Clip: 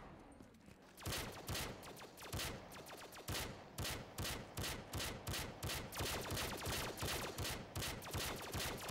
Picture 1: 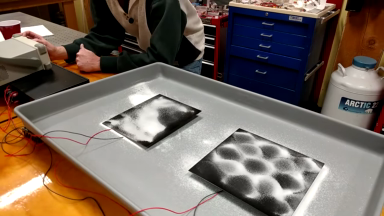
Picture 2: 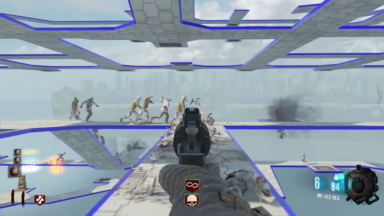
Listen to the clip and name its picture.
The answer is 2